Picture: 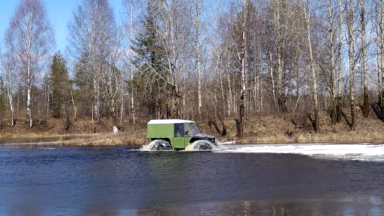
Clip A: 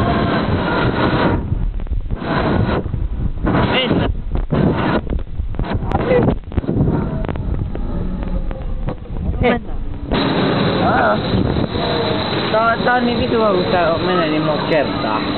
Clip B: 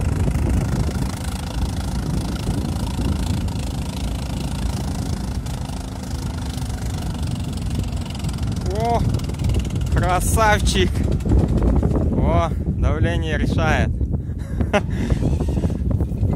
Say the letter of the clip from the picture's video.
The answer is B